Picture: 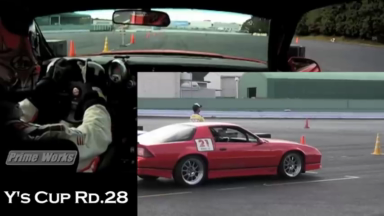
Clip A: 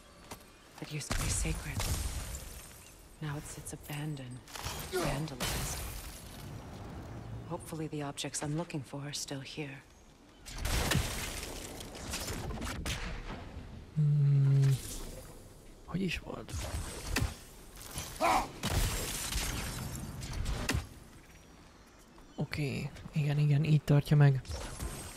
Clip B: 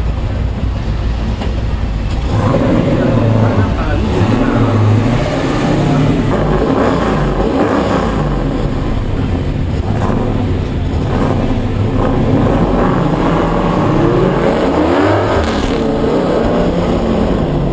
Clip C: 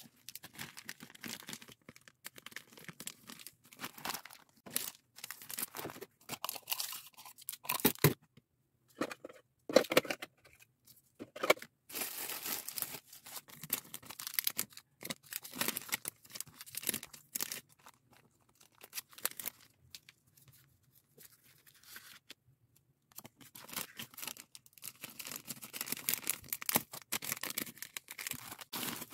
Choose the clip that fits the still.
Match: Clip B